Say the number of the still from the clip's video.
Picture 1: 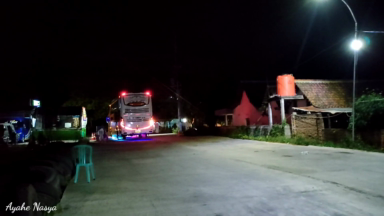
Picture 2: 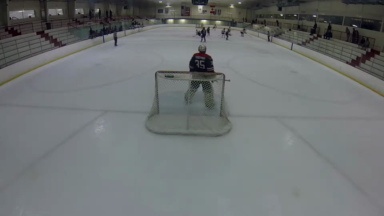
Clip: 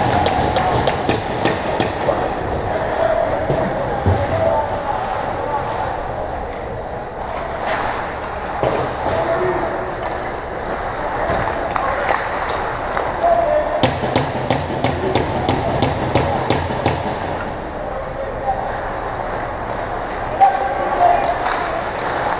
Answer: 2